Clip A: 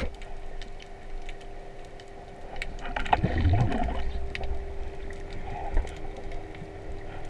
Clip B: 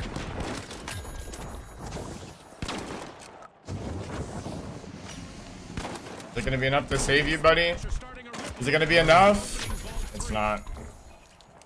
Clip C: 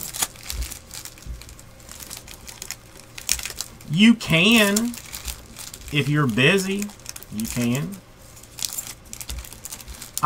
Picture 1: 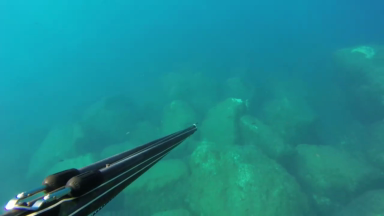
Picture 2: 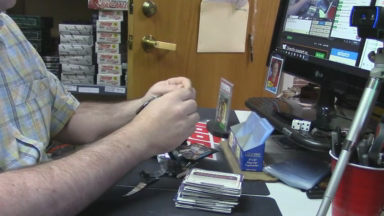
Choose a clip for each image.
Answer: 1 A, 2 C